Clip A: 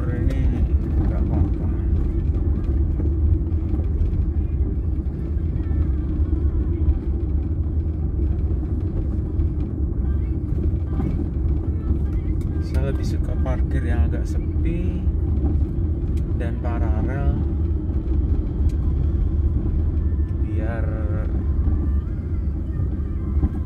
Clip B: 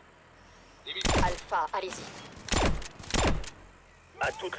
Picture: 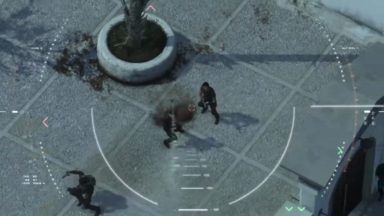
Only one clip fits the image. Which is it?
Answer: B